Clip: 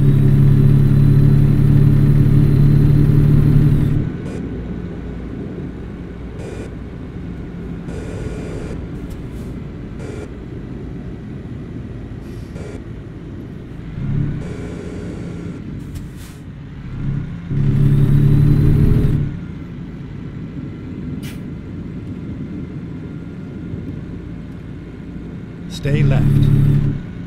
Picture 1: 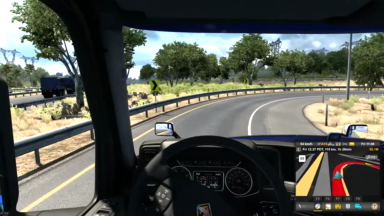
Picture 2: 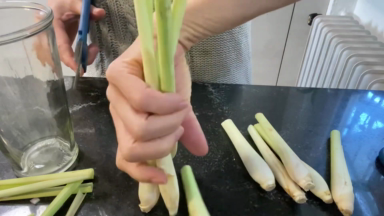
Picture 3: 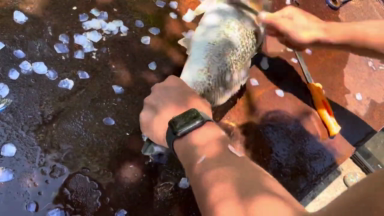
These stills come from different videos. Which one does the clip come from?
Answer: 1